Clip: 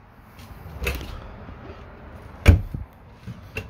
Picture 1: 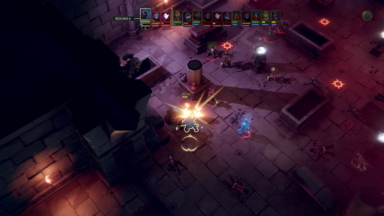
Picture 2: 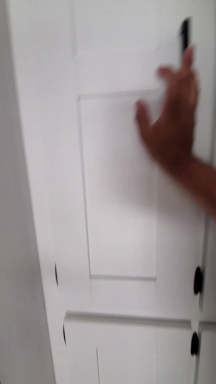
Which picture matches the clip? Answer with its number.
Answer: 2